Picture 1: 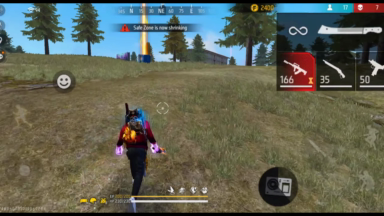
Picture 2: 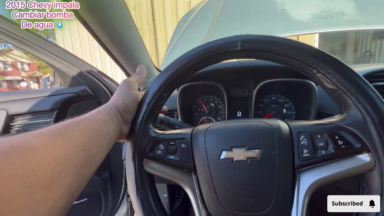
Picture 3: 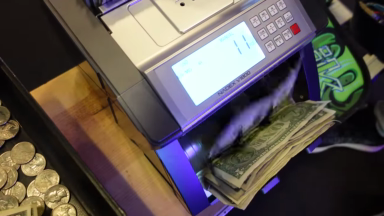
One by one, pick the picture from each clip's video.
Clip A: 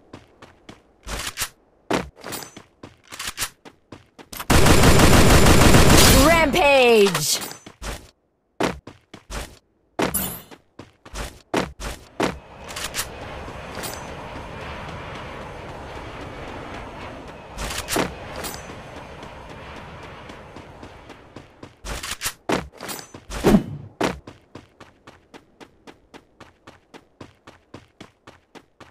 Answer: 1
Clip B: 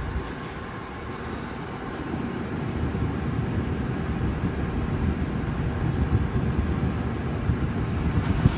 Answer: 2